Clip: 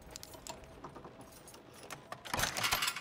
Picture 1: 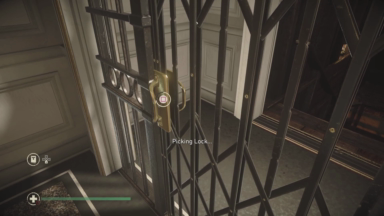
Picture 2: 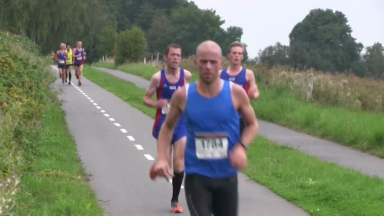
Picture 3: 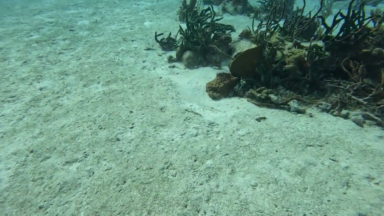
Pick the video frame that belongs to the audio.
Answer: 1